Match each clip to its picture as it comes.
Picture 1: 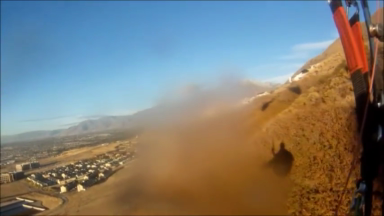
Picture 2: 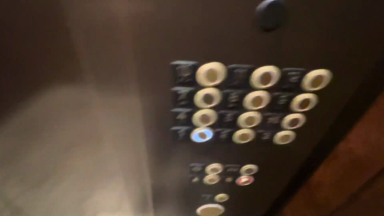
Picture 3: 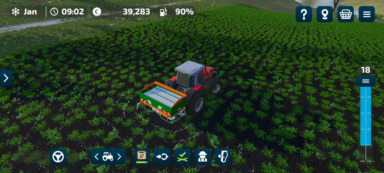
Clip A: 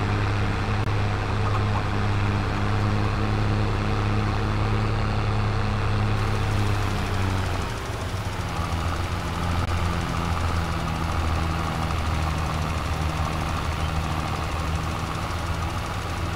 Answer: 3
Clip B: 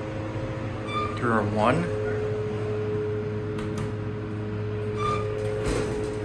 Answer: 2